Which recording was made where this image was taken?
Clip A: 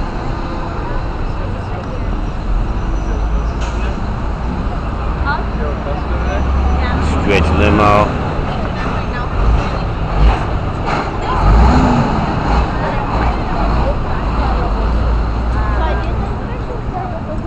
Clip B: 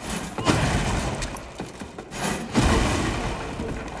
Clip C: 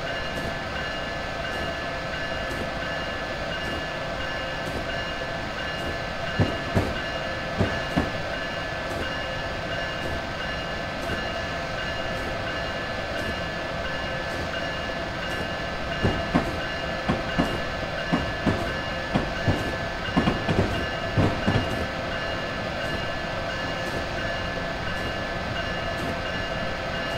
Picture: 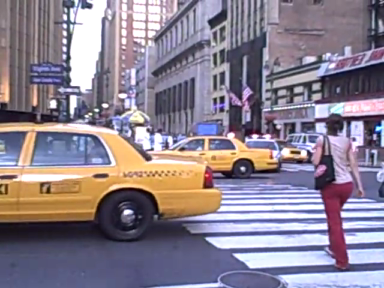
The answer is A